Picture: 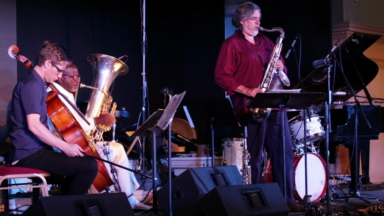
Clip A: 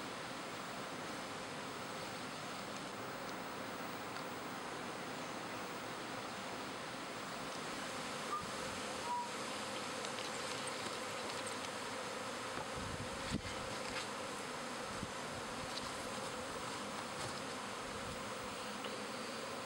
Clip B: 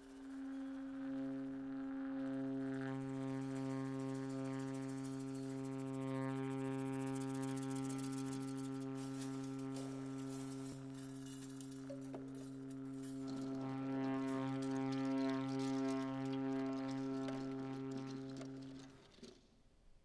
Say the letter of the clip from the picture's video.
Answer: B